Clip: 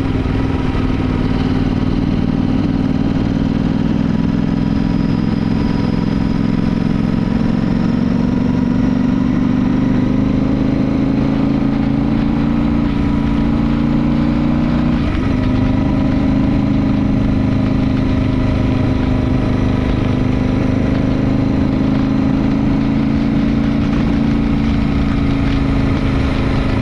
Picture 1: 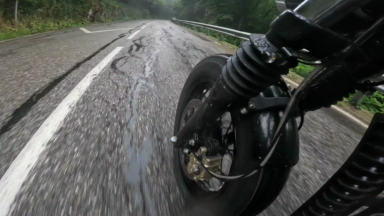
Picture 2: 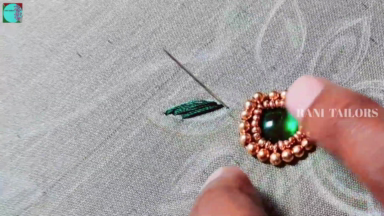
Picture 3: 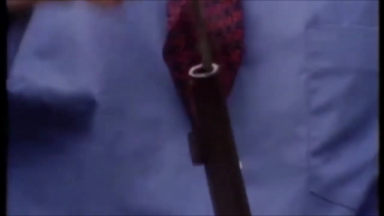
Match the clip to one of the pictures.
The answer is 1